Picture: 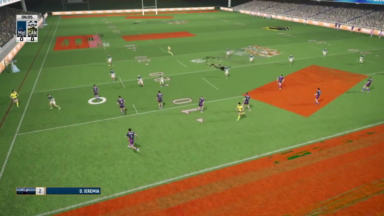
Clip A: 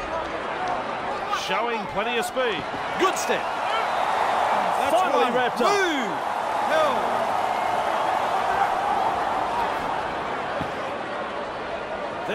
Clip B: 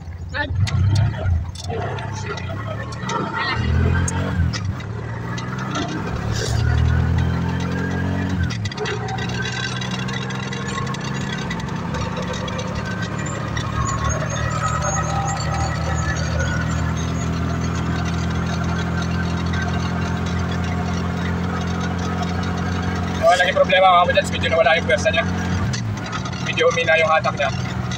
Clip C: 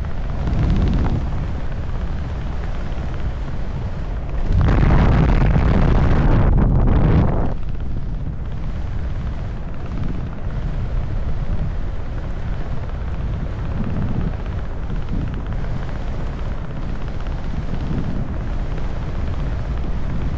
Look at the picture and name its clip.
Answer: A